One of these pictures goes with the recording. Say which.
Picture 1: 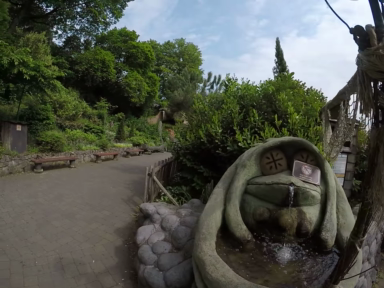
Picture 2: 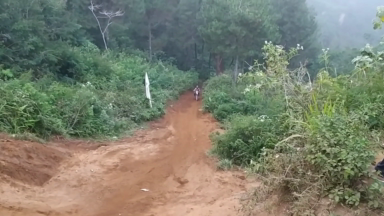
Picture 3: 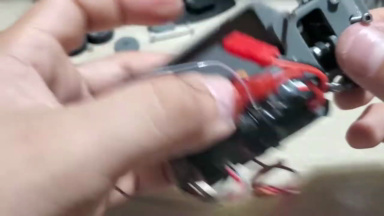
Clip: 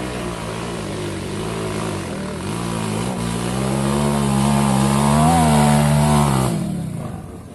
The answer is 2